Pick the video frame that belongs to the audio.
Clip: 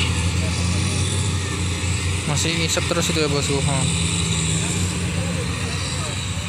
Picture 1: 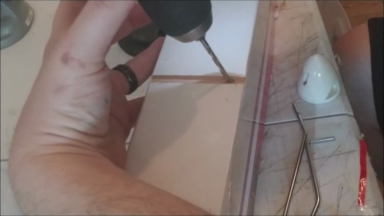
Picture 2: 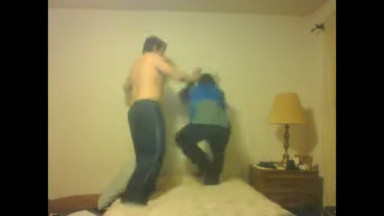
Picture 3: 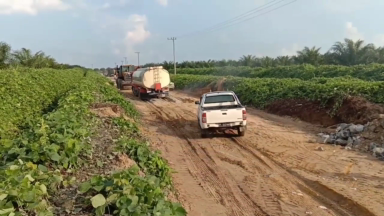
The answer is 3